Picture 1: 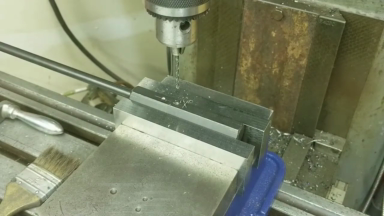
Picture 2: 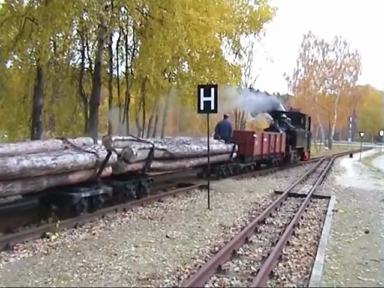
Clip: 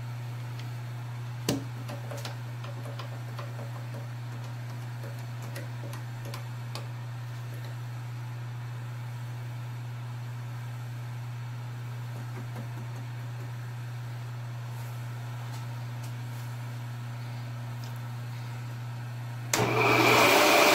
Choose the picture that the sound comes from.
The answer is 1